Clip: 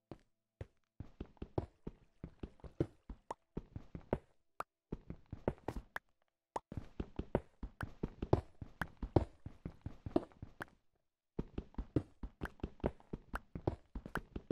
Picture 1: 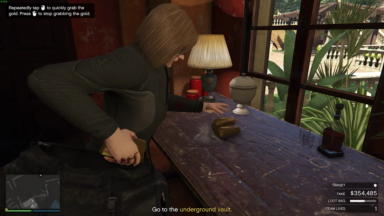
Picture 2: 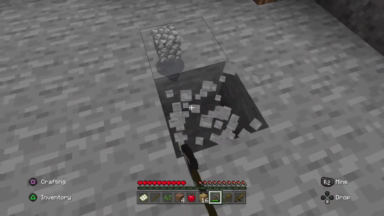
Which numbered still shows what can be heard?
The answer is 2